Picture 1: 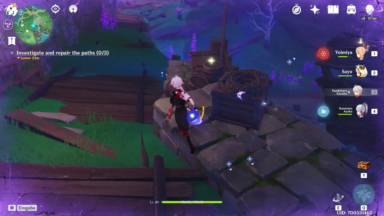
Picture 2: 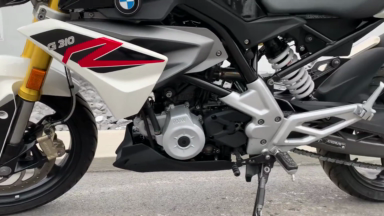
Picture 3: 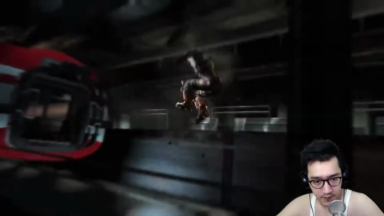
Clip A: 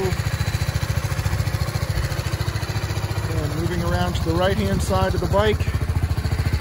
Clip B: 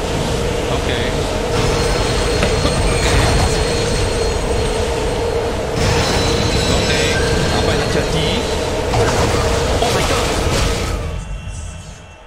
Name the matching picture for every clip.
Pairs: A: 2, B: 3